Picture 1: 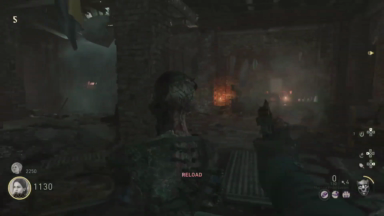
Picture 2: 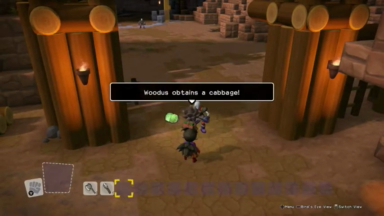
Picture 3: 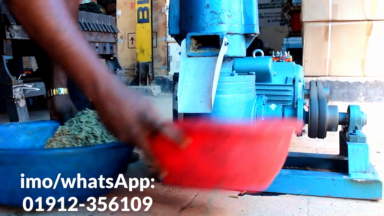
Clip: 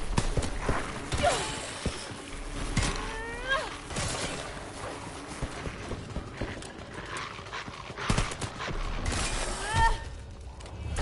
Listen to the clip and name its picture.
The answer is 1